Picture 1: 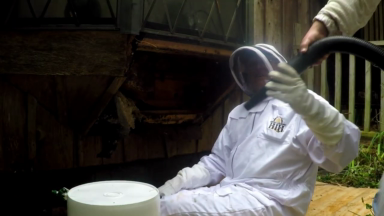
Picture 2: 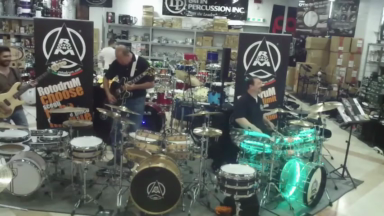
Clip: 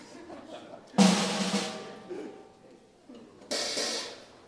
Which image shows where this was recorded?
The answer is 2